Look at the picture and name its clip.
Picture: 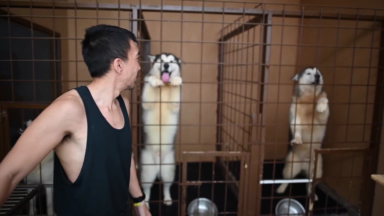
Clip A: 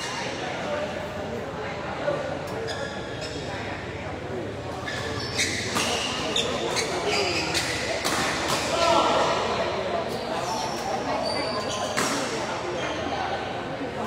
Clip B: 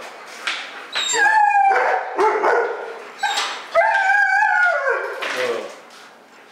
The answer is B